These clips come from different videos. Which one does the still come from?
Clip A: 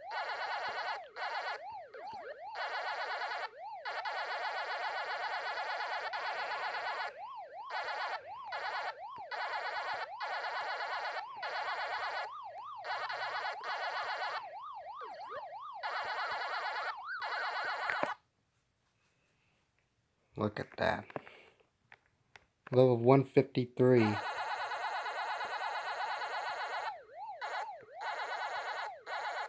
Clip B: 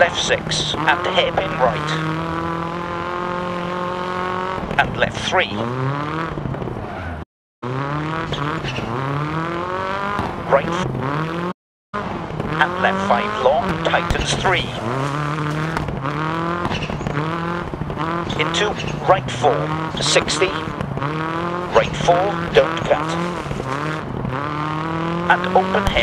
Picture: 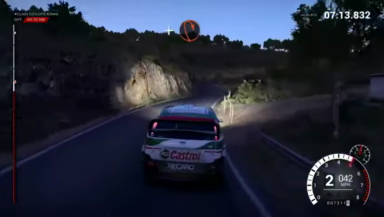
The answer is B